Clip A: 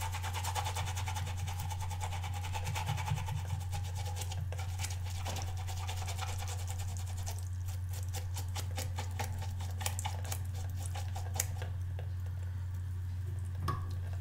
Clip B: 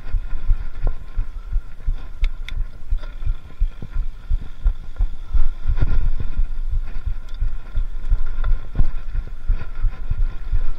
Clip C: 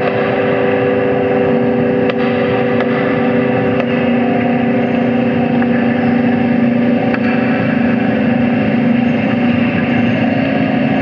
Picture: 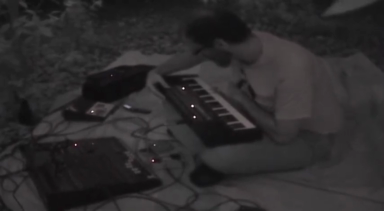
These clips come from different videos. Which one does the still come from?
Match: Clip C